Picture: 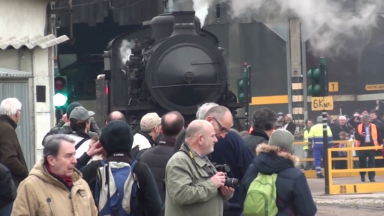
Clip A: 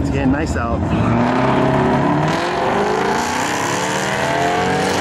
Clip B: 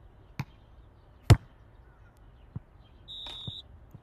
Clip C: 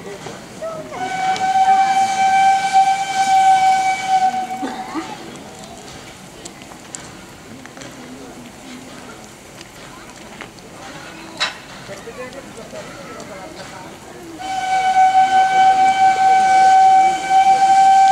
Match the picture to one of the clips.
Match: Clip C